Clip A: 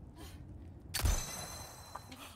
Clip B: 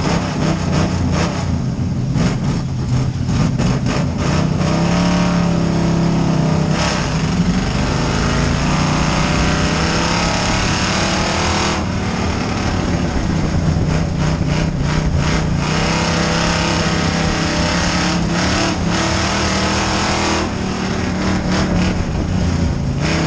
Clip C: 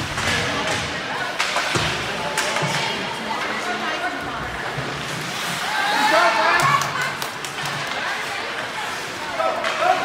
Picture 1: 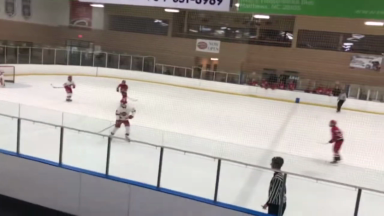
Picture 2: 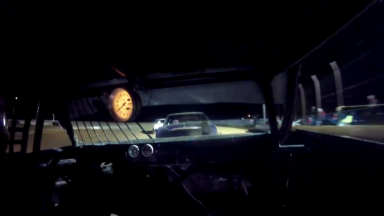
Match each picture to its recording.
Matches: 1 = C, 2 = B